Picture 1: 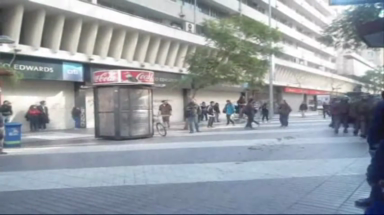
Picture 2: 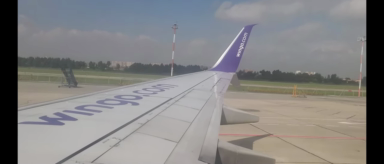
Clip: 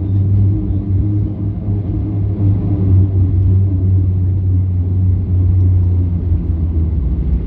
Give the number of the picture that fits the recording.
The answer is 2